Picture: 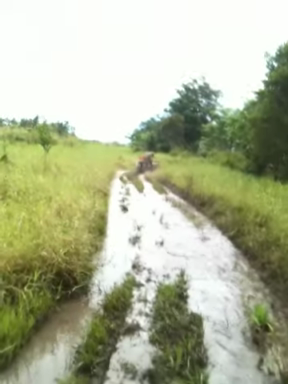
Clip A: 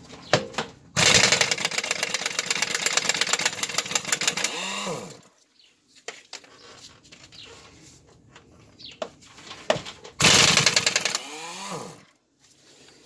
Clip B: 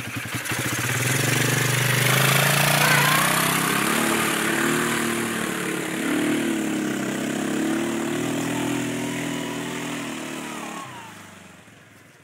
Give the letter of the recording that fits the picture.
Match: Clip B